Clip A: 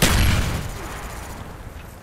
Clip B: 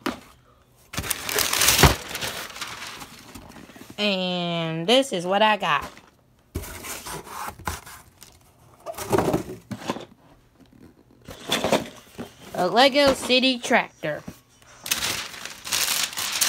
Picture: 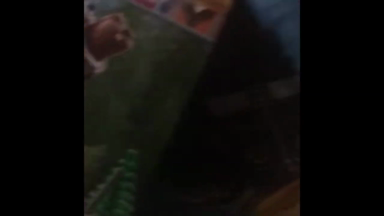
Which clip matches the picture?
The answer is B